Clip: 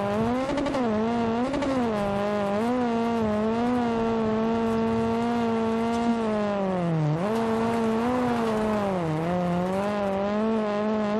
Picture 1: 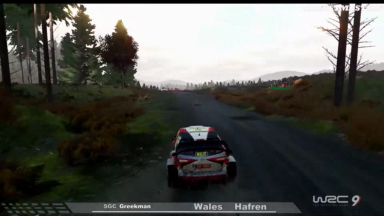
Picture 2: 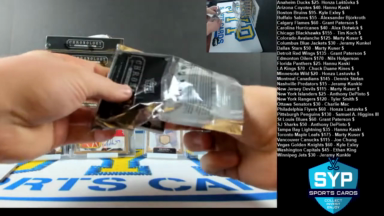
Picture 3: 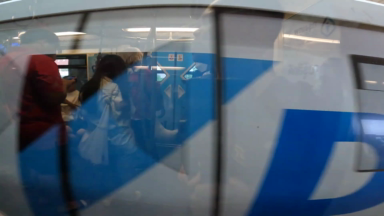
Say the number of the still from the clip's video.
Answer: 1